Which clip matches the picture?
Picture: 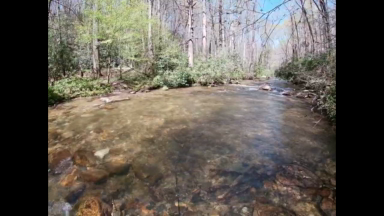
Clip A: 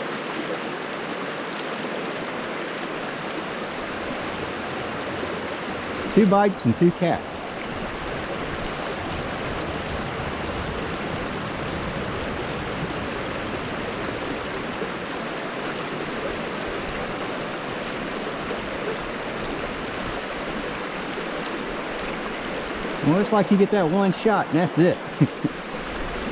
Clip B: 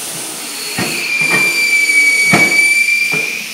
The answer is A